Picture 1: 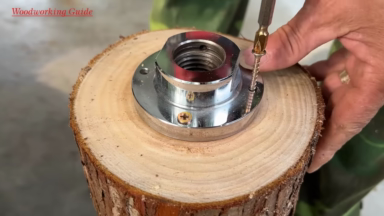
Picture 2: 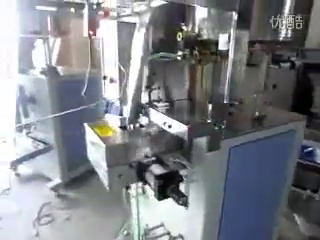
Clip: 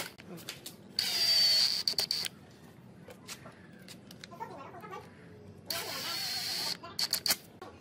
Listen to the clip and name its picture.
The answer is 1